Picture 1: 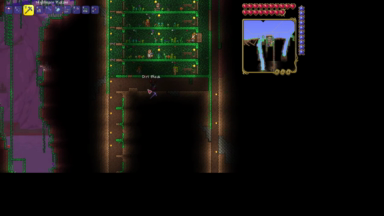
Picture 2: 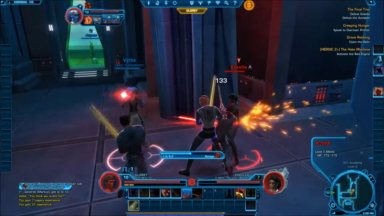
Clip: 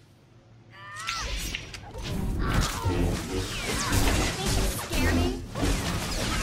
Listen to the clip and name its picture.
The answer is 2